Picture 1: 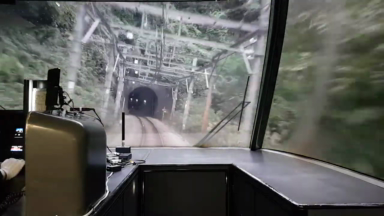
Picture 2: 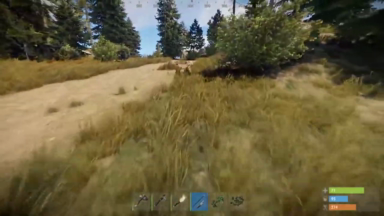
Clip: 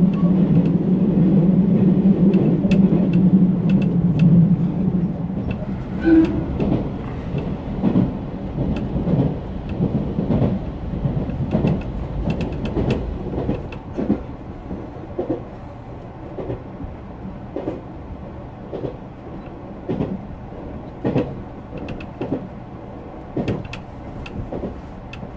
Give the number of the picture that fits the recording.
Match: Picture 1